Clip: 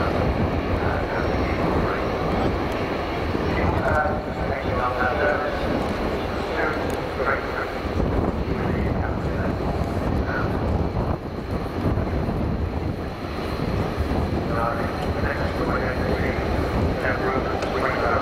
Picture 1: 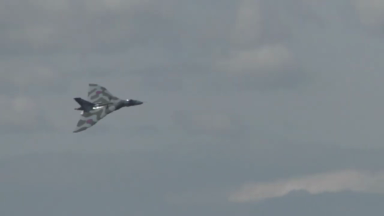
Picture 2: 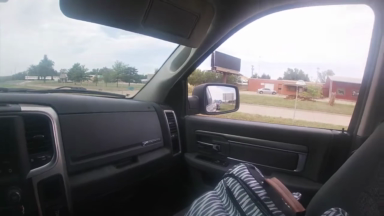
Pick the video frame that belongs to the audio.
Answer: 1